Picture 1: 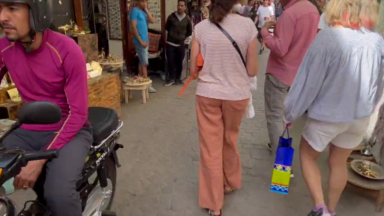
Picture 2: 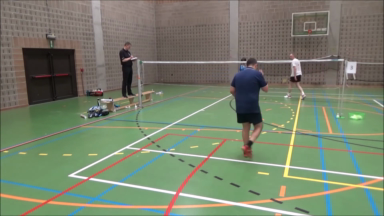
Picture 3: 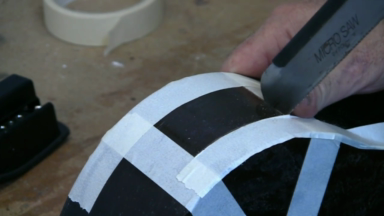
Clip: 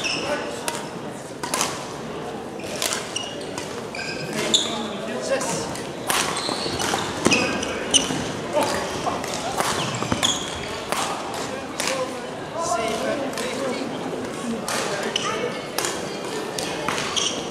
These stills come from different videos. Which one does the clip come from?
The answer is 2